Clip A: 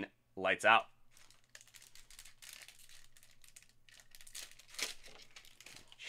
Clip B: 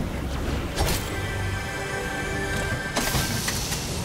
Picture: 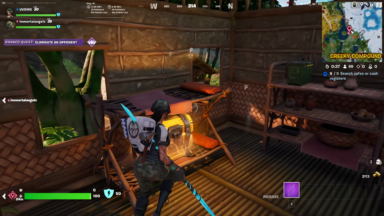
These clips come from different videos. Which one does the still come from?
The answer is B